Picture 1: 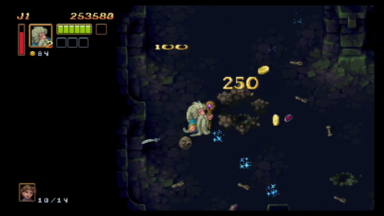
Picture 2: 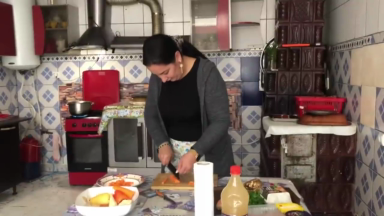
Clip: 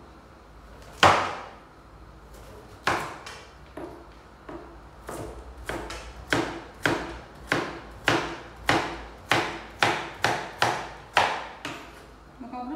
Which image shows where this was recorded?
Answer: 2